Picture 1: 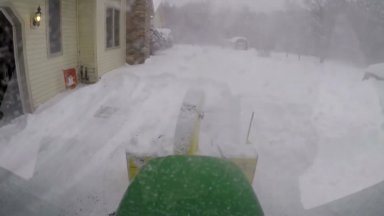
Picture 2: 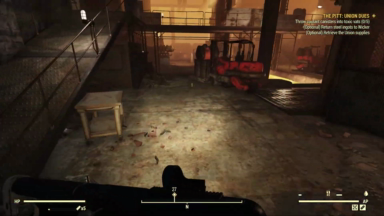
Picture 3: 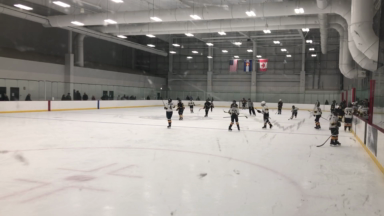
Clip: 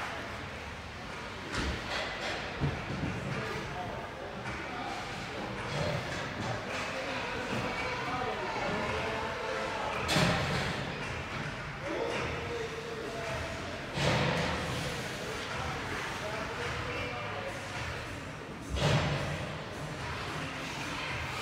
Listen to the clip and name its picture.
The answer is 3